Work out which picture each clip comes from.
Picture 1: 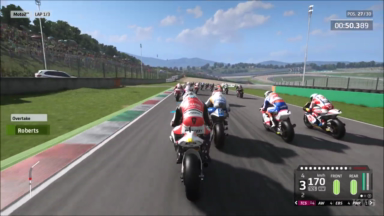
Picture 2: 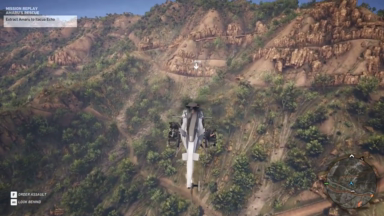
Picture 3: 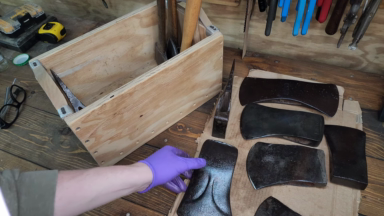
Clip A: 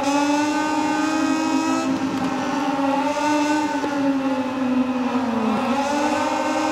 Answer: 1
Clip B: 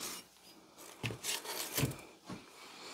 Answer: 3